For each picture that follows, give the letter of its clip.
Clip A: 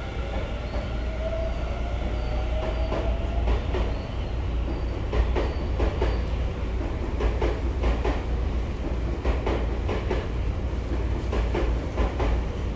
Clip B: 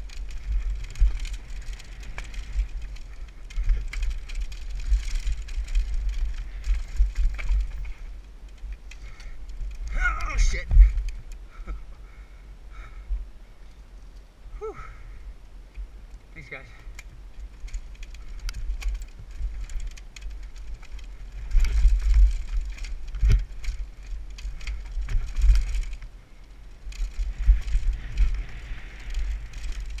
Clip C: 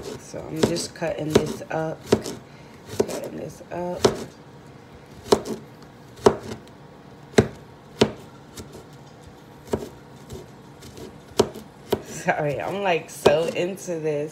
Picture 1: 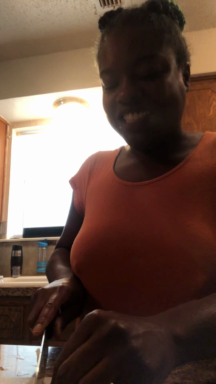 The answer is C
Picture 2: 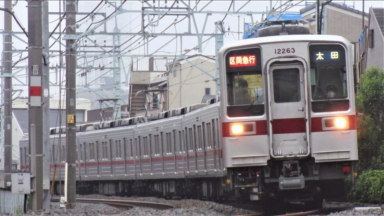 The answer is A